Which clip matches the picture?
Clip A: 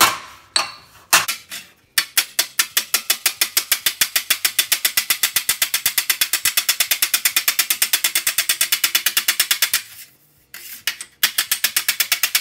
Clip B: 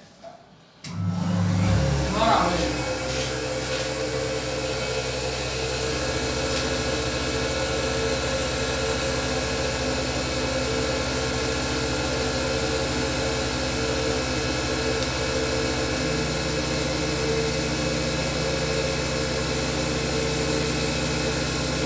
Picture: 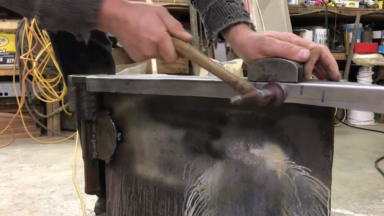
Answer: A